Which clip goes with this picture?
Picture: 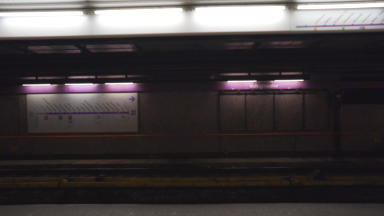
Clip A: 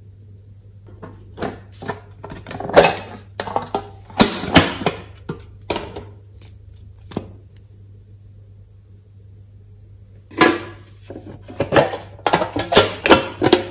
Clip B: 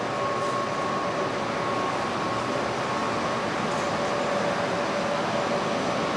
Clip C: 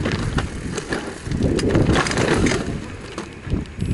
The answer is B